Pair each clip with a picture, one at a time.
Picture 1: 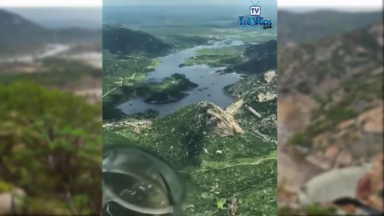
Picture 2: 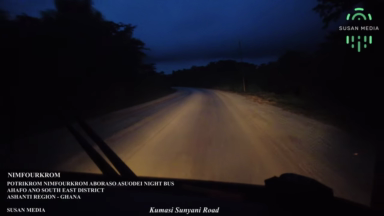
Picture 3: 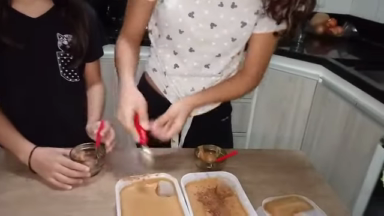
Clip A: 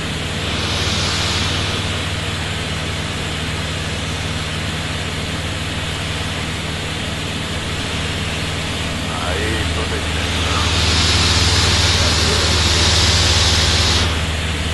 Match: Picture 1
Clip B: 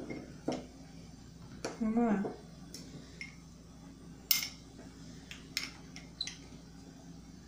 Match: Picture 3